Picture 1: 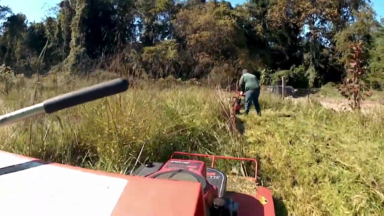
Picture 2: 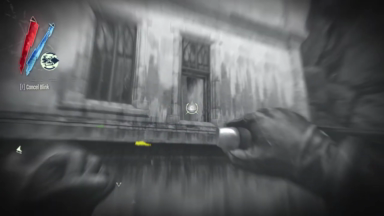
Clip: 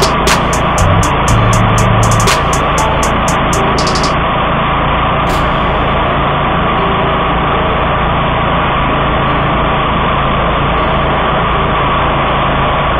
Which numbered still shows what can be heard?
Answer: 1